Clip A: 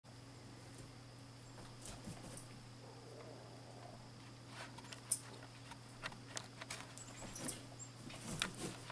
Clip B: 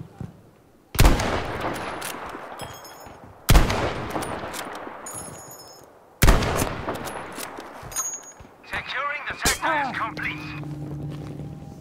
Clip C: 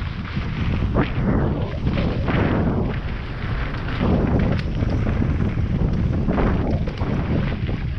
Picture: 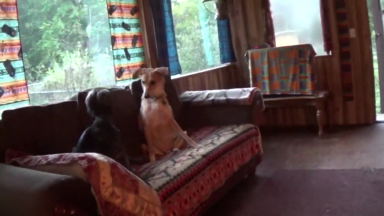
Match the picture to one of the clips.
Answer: A